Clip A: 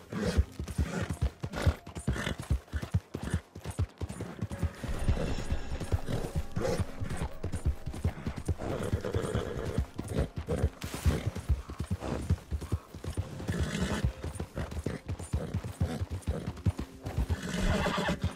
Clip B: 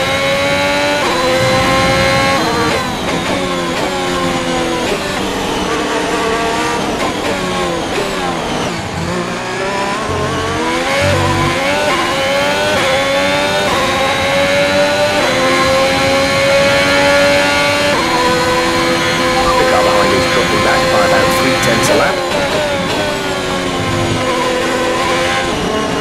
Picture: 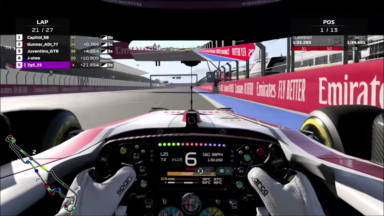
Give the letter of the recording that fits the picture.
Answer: B